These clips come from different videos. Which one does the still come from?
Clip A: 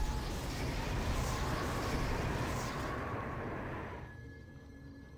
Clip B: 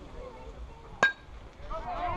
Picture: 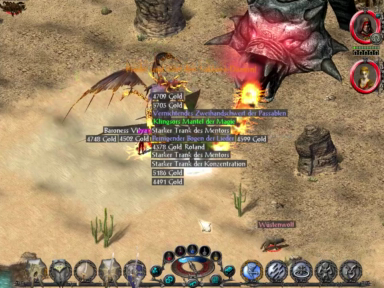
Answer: A